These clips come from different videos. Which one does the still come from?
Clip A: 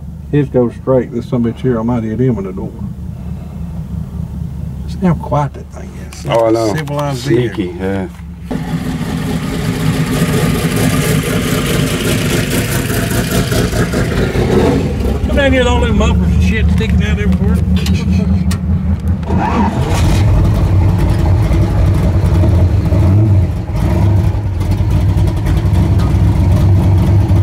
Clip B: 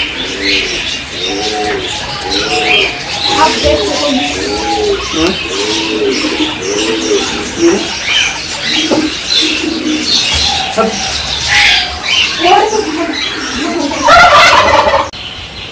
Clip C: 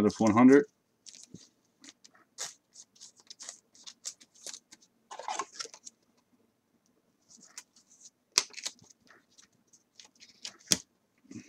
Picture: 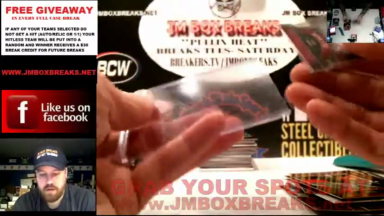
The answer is C